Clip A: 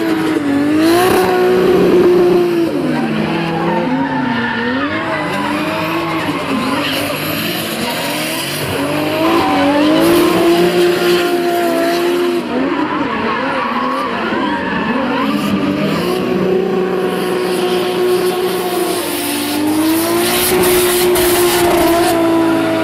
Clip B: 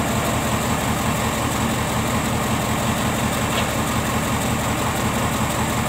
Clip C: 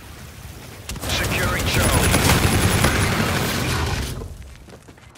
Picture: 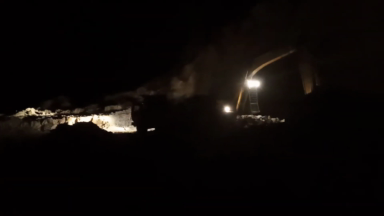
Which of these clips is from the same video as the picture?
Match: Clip B